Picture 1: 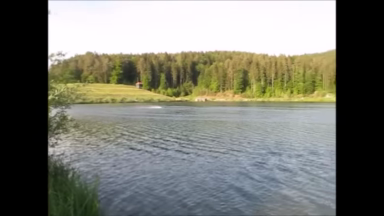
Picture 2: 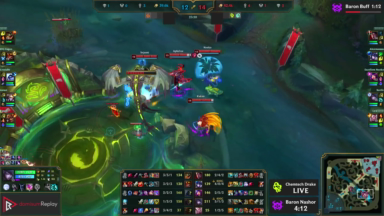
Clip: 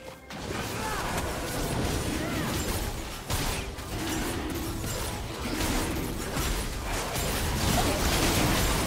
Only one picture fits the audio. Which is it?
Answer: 2